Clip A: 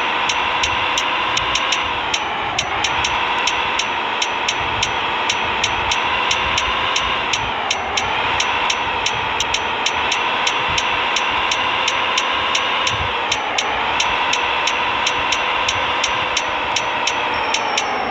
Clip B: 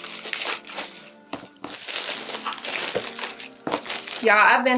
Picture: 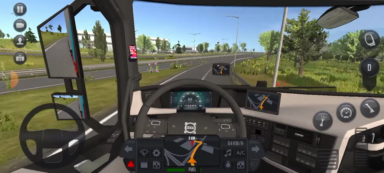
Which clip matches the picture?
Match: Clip A